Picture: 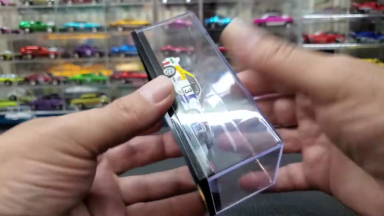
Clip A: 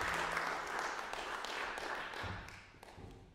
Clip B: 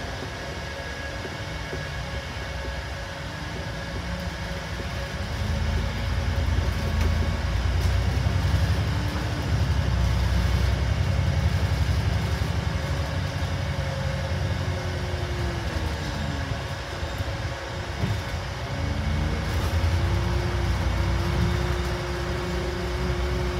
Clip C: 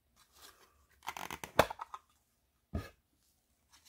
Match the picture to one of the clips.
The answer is C